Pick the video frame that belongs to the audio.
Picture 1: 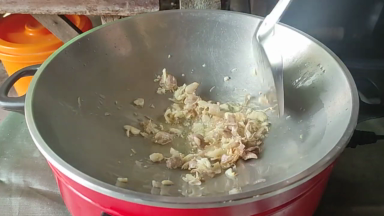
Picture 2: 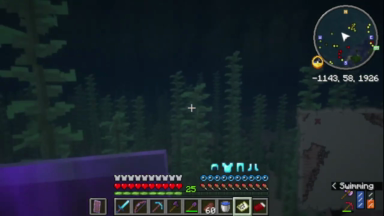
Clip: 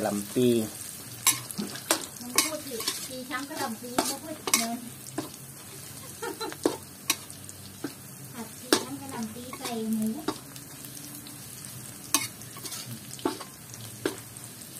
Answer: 1